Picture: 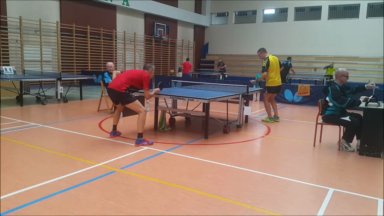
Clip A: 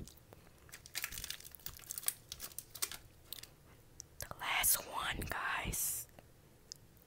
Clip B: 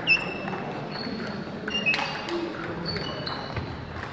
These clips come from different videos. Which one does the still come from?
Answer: B